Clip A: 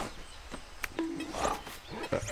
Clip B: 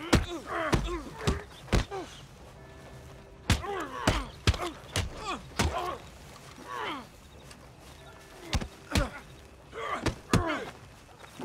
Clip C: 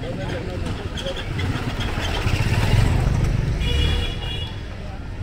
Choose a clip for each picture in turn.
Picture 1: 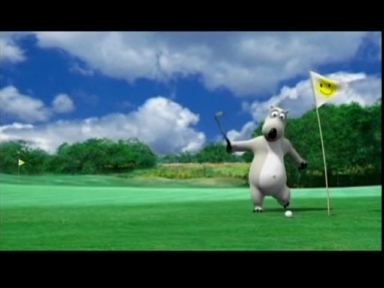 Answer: A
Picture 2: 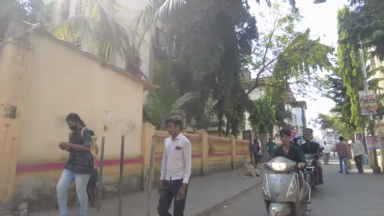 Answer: C